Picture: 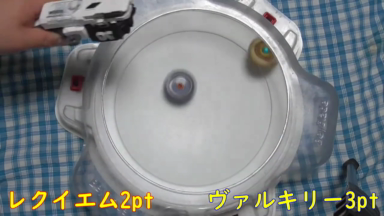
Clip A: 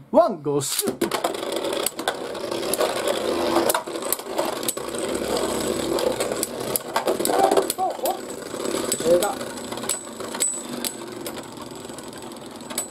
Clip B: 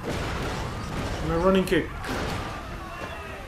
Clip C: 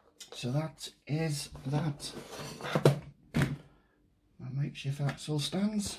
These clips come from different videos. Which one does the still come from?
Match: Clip A